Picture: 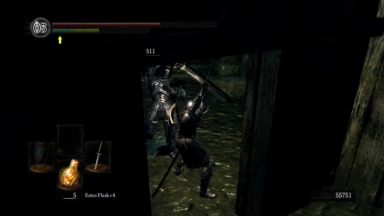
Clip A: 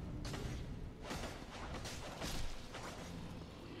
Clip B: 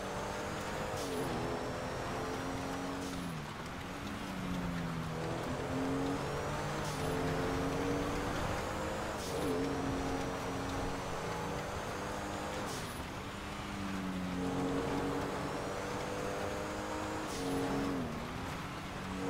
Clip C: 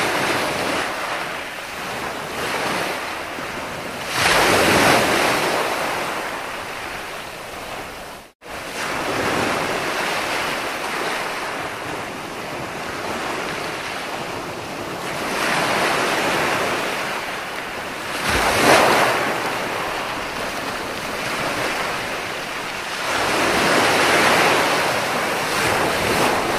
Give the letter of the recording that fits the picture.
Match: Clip A